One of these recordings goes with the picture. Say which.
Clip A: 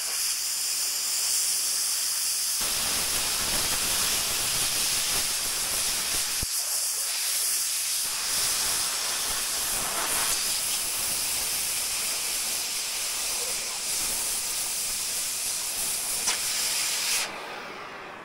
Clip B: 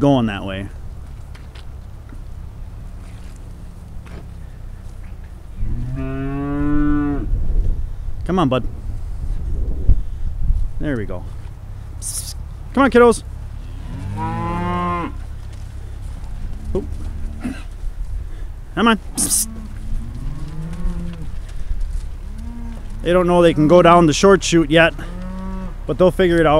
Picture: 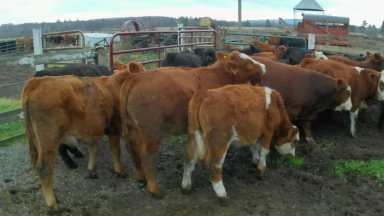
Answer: B